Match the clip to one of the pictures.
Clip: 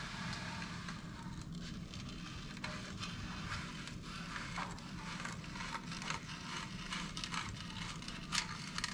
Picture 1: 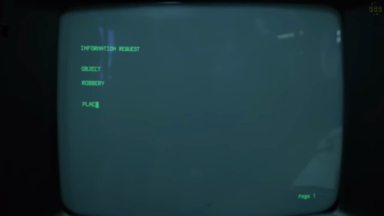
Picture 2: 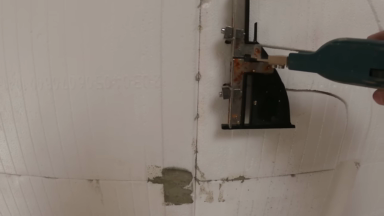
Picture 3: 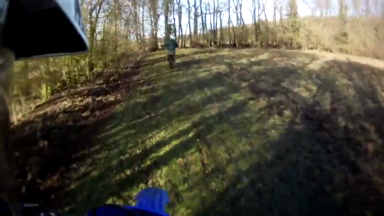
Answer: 2